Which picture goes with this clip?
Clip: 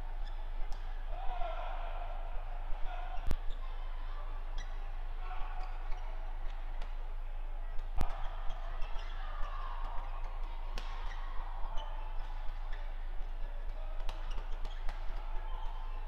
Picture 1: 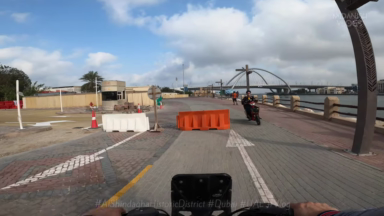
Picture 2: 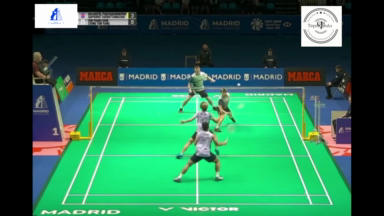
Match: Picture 2